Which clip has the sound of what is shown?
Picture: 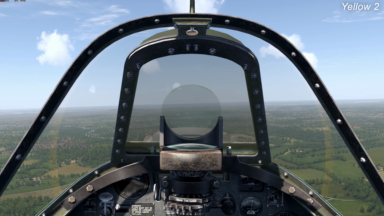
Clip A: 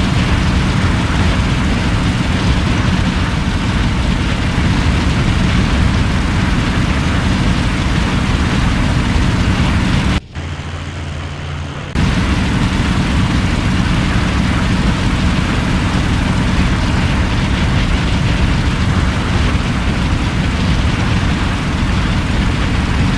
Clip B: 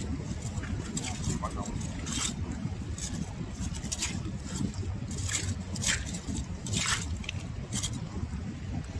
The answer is A